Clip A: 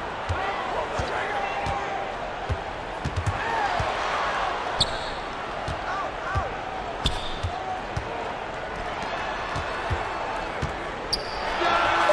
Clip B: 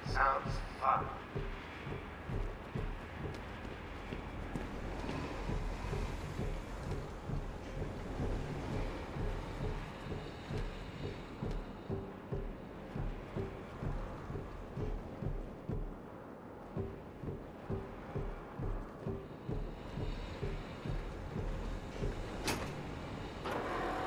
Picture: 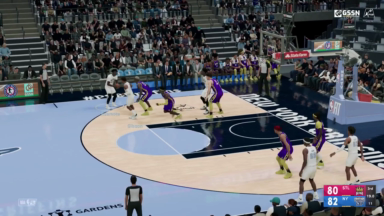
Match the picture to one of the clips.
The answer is A